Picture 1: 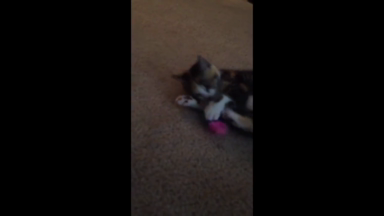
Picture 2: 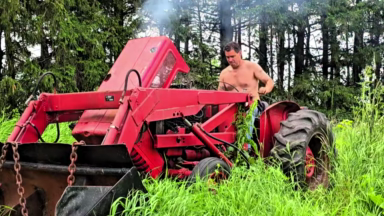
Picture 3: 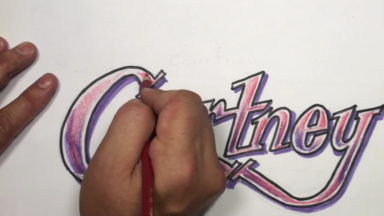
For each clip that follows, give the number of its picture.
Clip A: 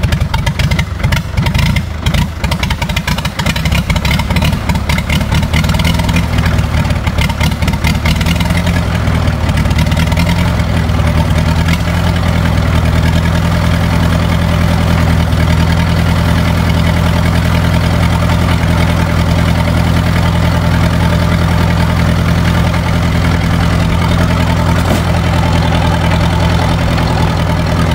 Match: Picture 2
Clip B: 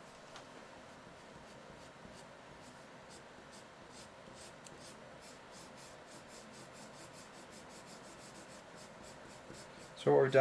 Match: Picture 3